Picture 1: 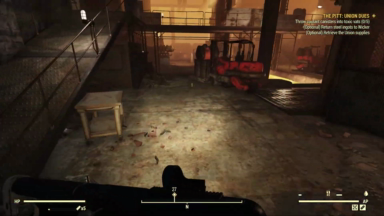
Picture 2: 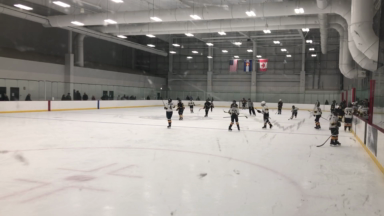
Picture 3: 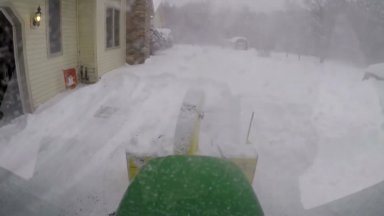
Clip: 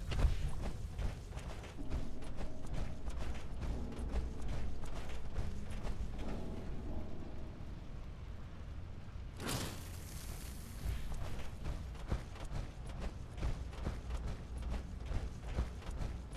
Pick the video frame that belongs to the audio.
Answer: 1